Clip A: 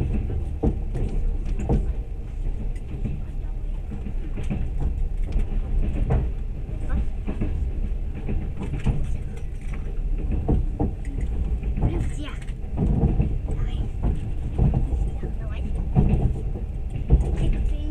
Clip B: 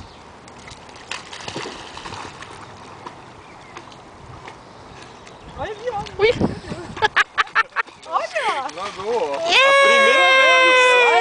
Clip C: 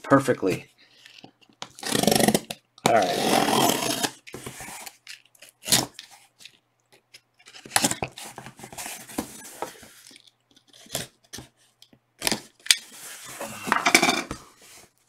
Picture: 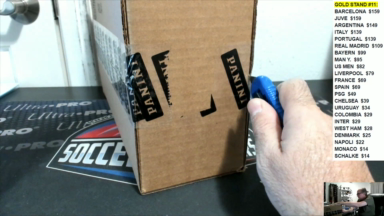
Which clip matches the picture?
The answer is C